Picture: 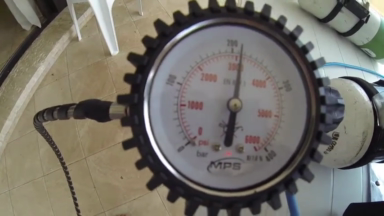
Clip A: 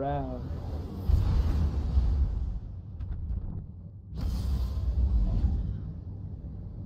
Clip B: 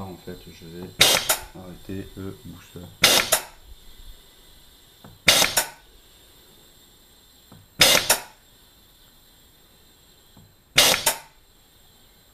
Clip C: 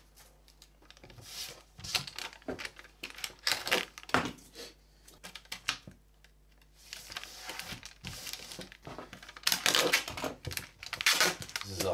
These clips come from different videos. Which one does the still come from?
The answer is B